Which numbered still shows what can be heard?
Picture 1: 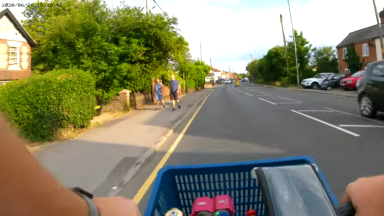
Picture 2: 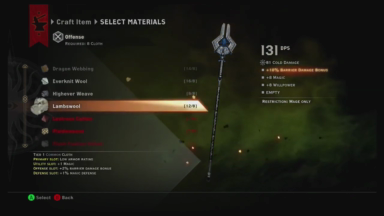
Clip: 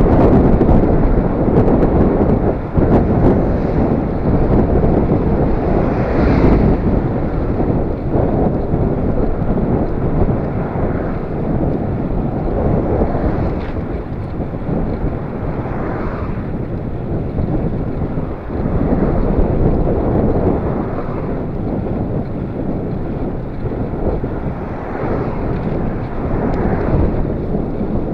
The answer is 1